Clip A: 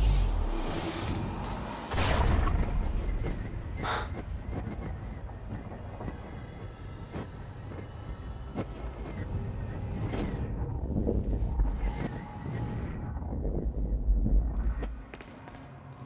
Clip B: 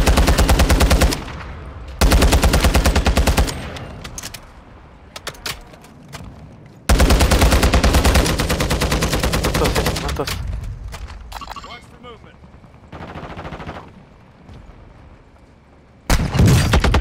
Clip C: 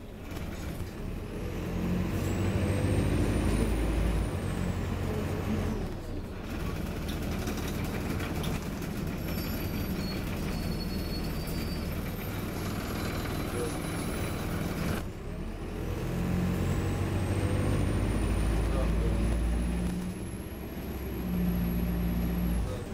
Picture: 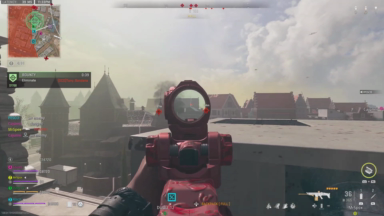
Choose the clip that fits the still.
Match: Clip B